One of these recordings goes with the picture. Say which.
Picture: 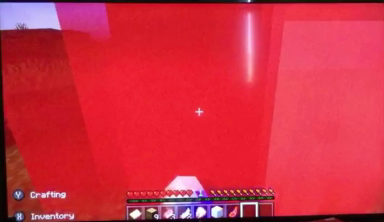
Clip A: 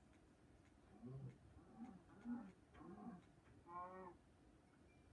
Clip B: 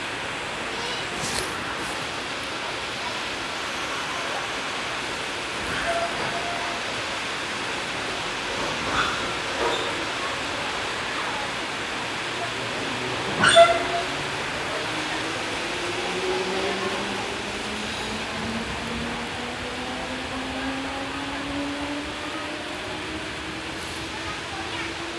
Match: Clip A